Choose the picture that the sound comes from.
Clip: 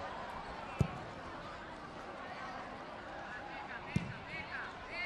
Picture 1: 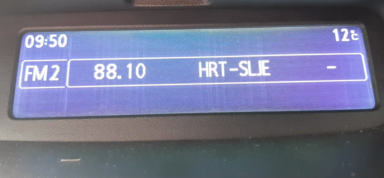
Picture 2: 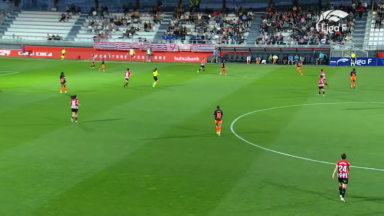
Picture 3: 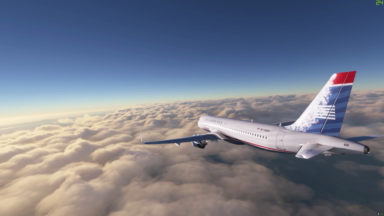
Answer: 2